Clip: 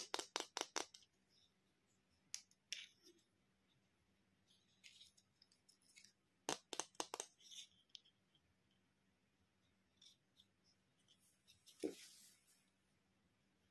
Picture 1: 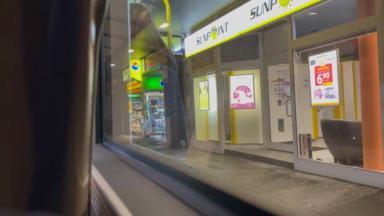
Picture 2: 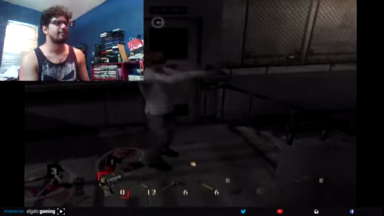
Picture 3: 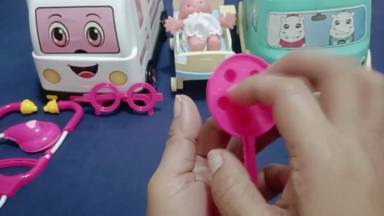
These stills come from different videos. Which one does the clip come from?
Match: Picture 3